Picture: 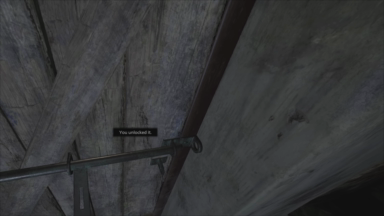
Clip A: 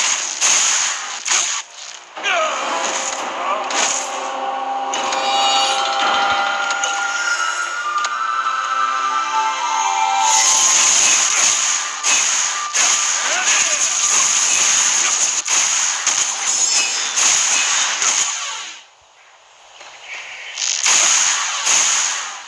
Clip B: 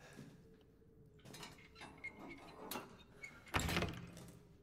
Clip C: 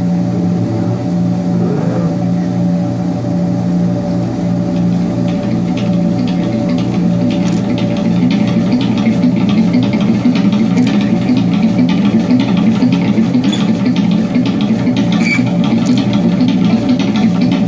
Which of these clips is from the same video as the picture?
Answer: B